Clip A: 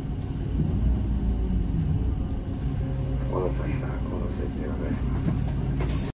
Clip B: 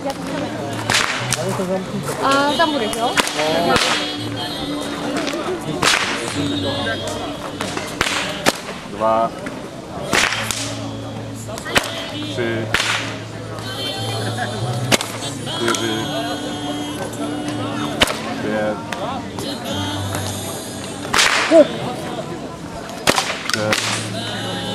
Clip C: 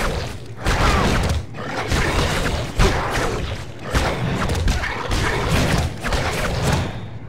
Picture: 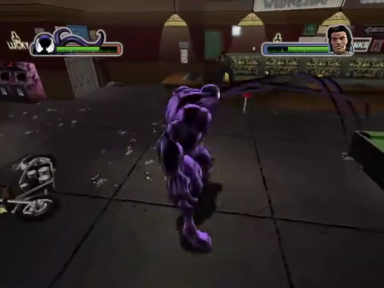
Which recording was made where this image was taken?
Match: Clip C